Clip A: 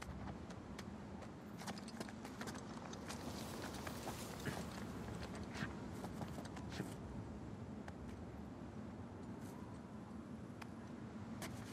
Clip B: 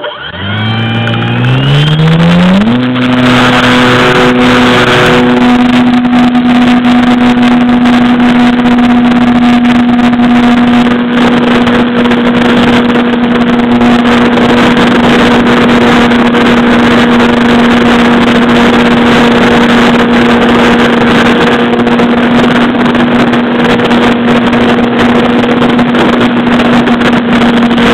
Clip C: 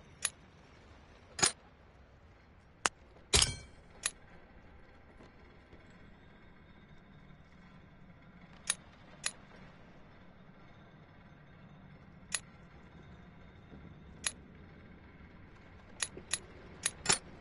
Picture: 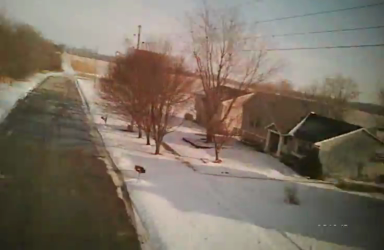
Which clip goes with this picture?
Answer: B